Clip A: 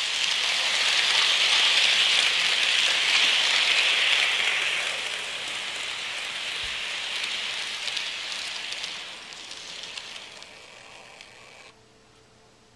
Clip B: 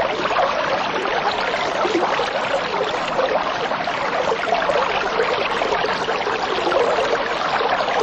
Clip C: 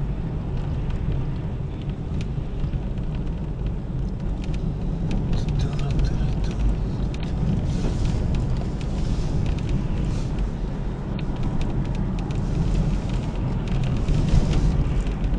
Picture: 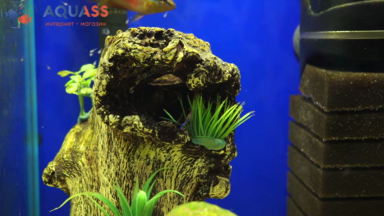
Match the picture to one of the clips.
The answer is B